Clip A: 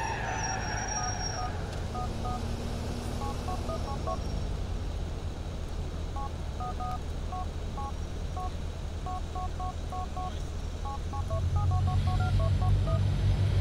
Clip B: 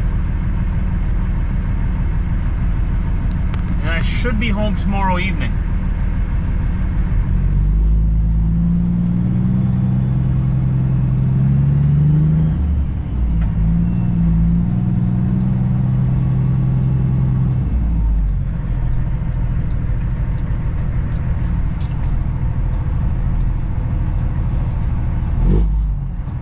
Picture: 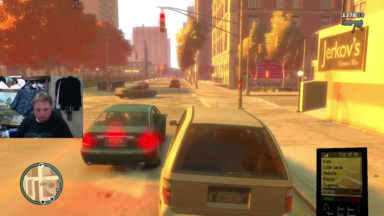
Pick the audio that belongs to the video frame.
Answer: A